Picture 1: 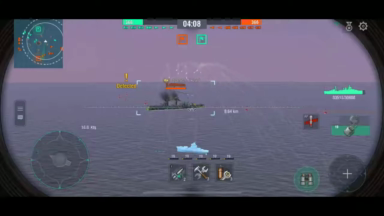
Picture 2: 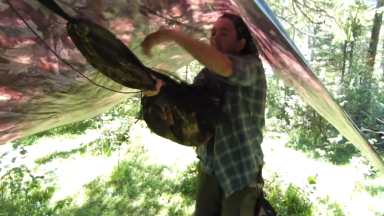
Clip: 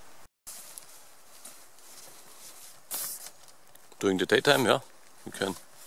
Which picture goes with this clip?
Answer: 2